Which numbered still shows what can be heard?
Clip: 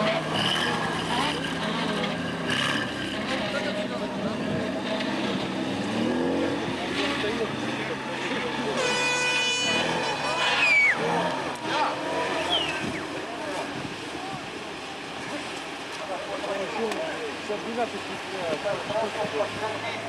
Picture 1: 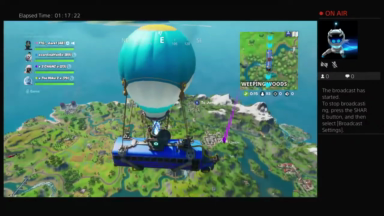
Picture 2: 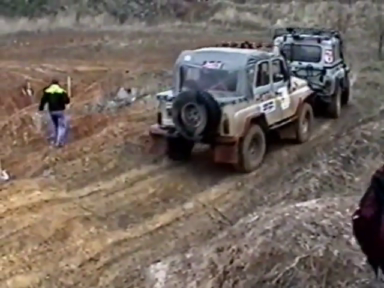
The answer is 2